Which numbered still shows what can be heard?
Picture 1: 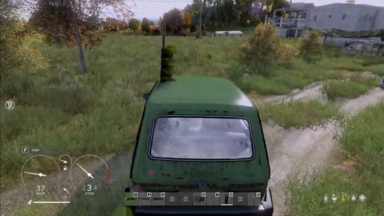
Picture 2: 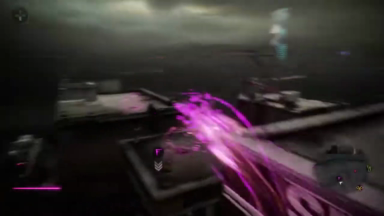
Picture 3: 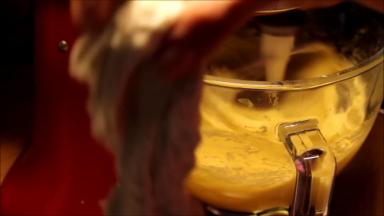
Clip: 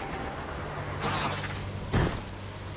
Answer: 2